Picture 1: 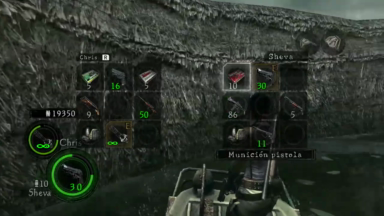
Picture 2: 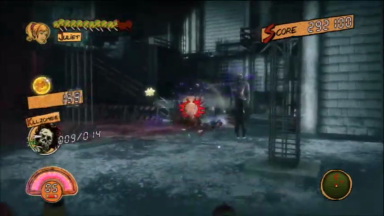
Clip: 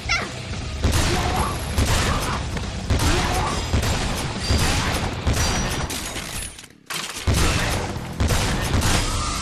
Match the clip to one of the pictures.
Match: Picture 2